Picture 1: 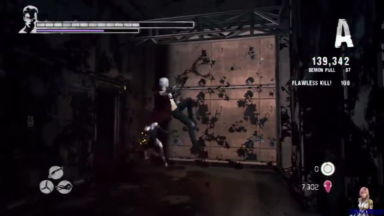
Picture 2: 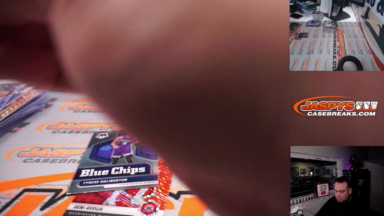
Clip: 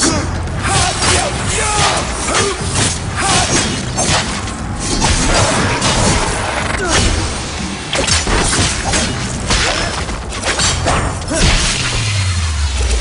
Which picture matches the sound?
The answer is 1